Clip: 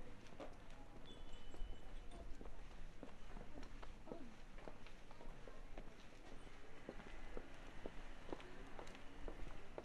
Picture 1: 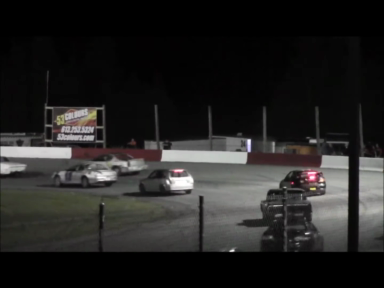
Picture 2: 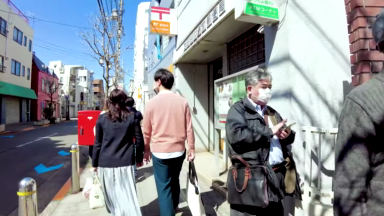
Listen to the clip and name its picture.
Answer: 2